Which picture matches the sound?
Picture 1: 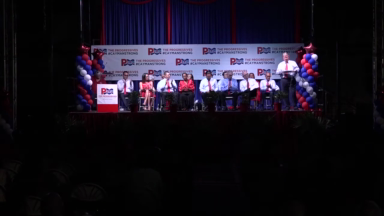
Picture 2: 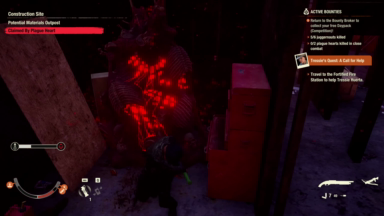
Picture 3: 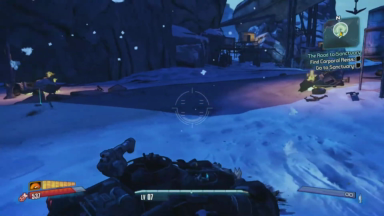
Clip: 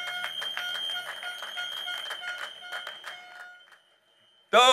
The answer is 1